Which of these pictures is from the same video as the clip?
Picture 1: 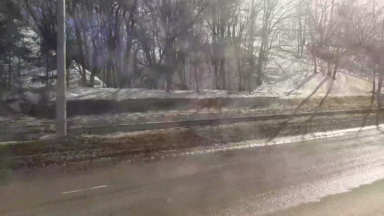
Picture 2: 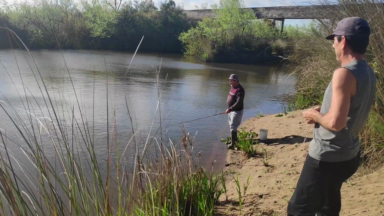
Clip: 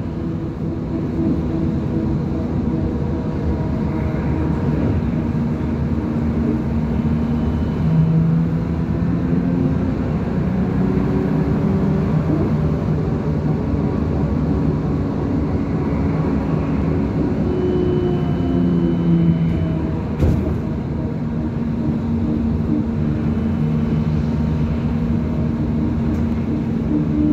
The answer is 1